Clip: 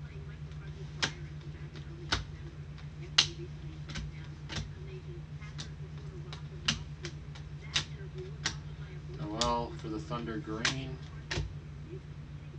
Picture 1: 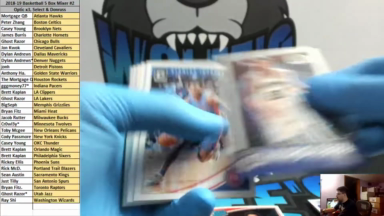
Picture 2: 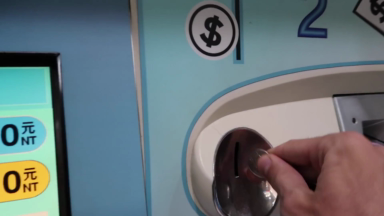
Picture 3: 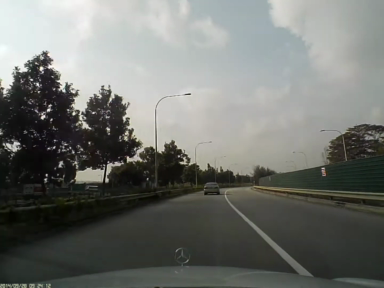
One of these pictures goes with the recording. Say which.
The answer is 1